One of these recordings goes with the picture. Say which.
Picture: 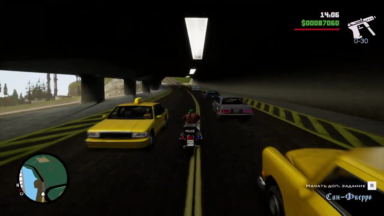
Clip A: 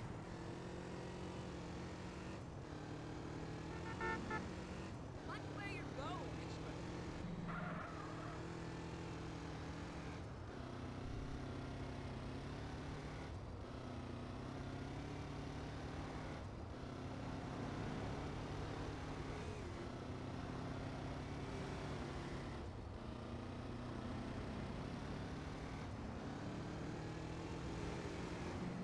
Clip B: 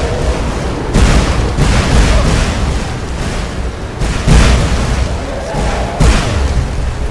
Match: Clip A